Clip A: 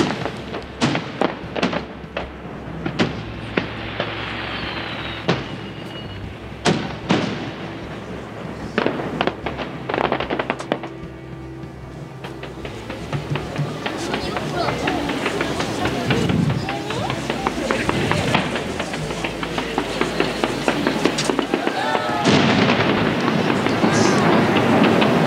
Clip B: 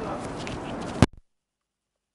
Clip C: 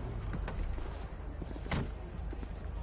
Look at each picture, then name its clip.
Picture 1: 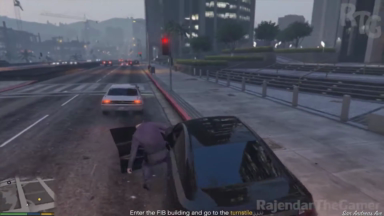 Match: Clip C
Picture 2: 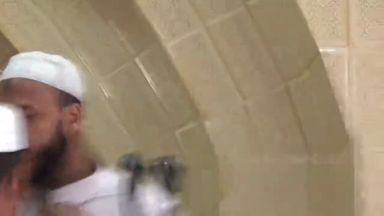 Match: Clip B